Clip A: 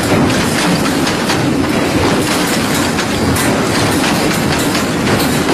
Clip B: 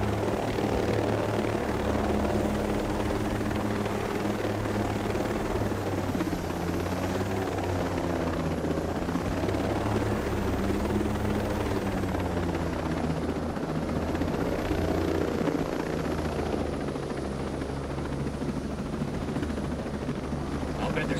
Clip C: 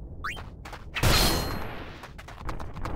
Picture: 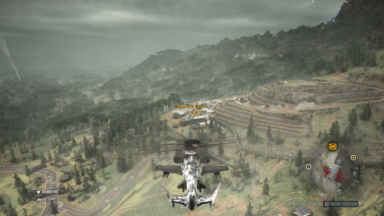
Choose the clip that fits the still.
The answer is B